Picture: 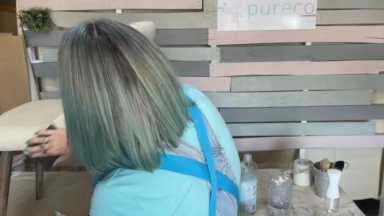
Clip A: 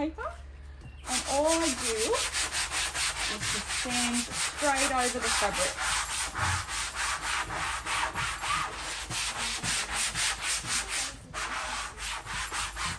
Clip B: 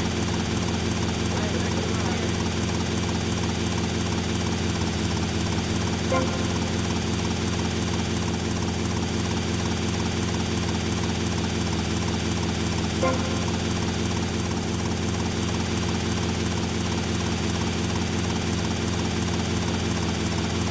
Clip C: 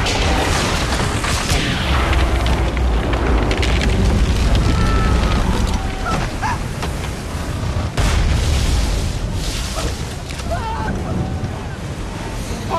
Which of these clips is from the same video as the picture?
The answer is A